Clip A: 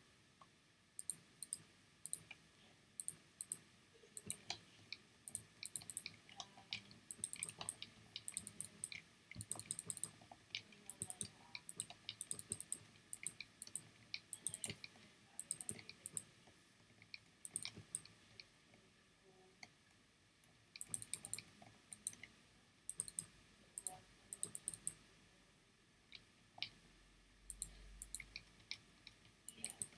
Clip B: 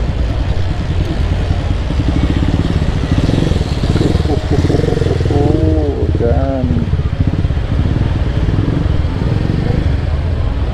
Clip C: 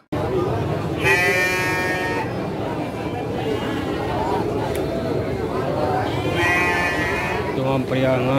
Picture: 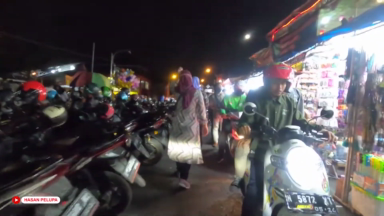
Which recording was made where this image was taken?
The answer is B